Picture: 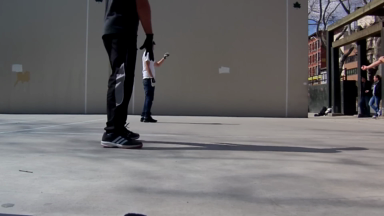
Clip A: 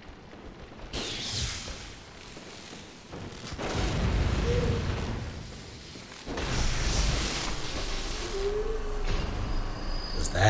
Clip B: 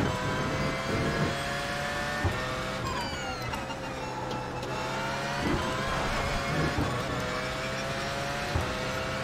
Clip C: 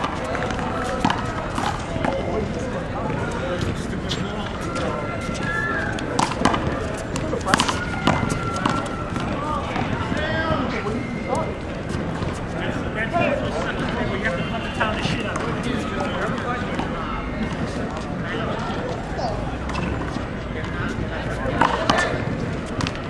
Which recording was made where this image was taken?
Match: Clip C